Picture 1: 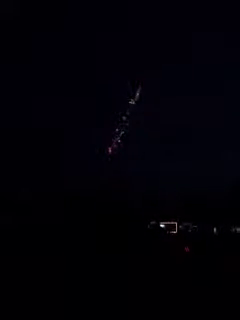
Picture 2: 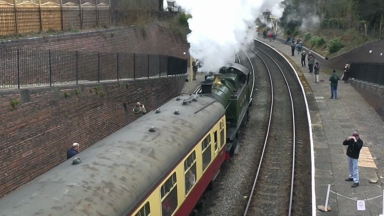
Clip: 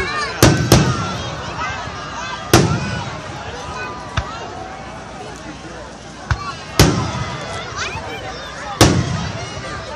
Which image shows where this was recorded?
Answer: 1